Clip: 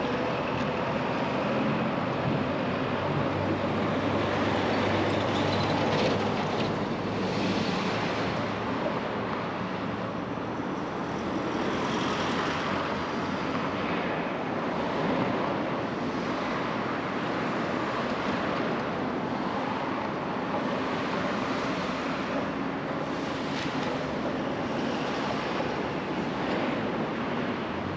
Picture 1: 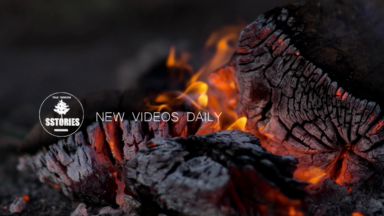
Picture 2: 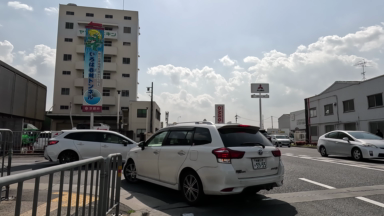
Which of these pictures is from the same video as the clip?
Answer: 2